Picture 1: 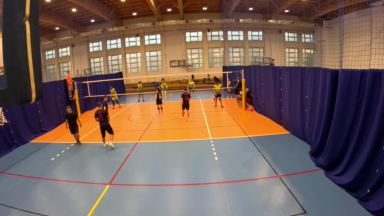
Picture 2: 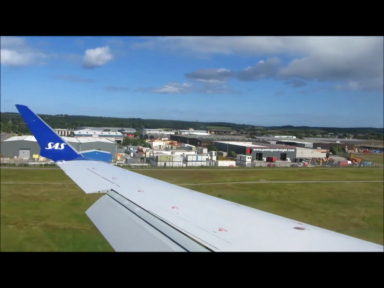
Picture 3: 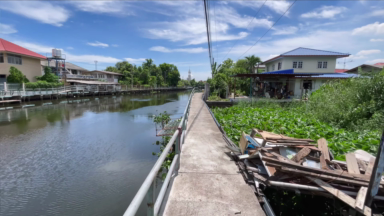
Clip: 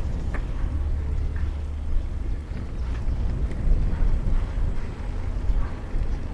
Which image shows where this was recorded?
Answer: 3